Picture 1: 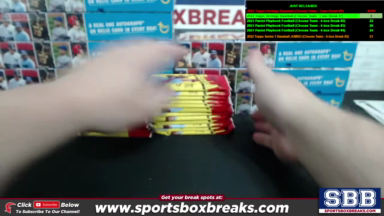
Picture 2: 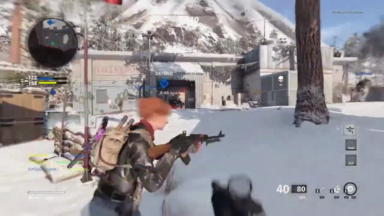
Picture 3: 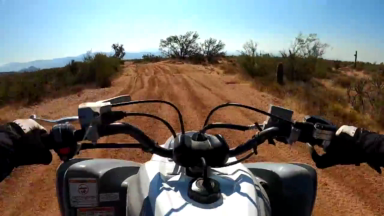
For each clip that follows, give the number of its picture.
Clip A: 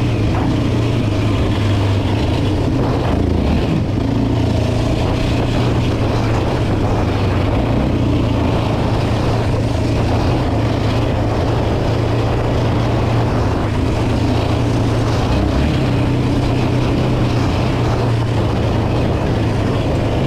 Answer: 3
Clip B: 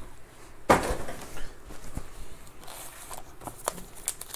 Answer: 1